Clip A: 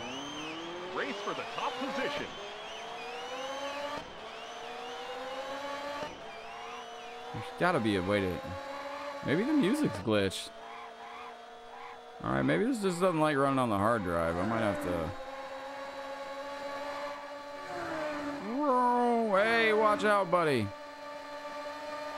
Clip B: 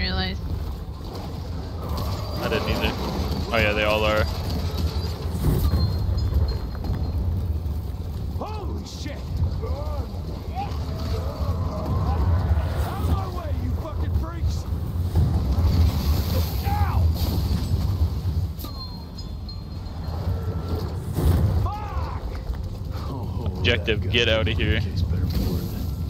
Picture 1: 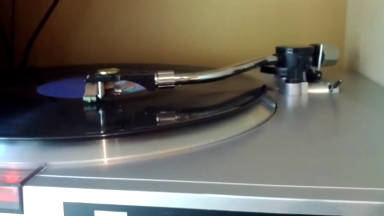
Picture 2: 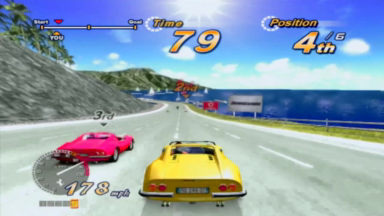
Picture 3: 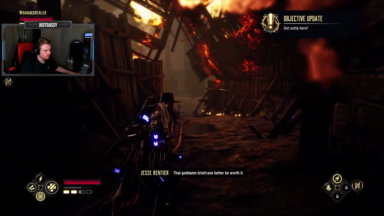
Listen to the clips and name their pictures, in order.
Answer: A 2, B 3